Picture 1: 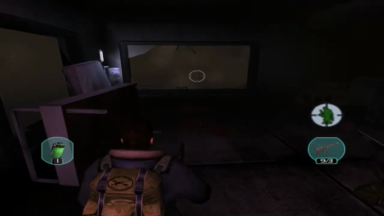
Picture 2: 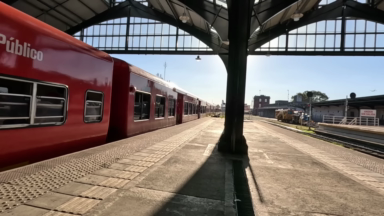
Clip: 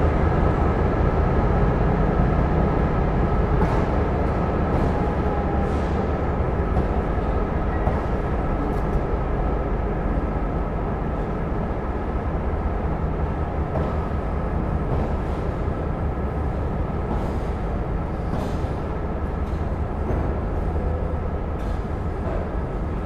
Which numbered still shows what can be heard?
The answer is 2